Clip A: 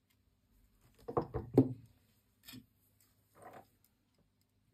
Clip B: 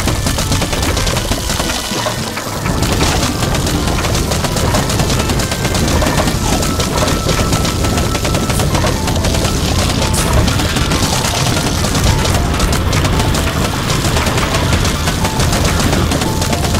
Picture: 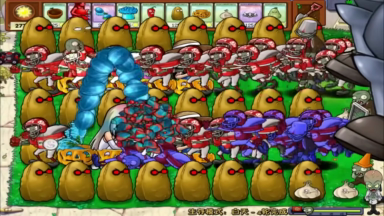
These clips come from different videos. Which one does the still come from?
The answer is B